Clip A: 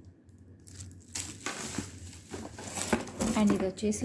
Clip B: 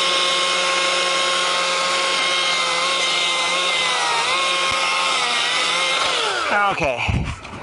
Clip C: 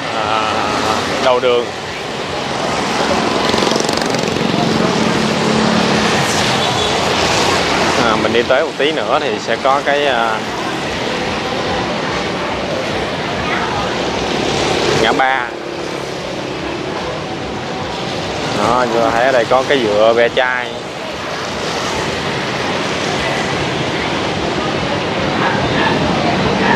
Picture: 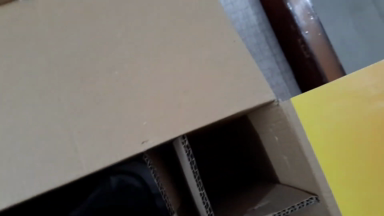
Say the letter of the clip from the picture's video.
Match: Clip A